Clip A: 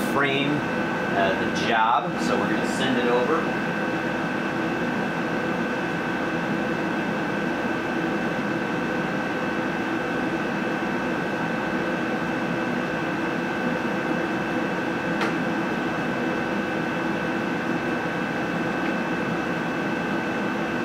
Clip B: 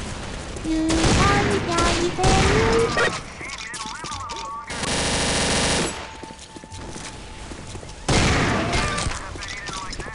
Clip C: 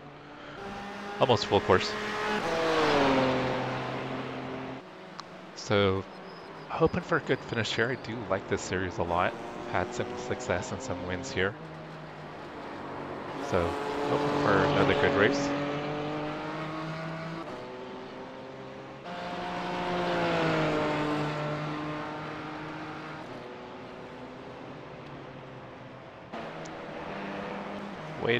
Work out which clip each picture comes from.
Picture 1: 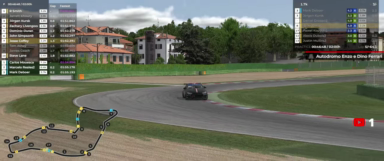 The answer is C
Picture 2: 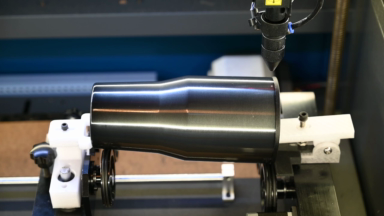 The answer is A